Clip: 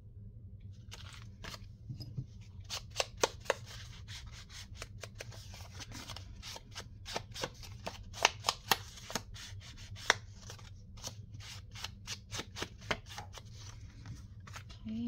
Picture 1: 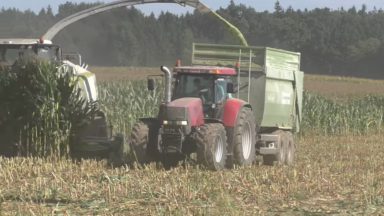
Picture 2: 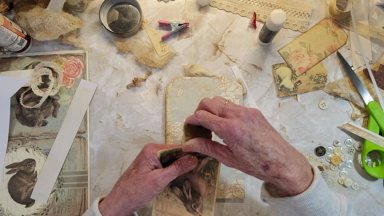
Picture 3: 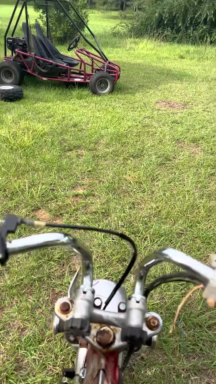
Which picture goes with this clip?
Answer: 2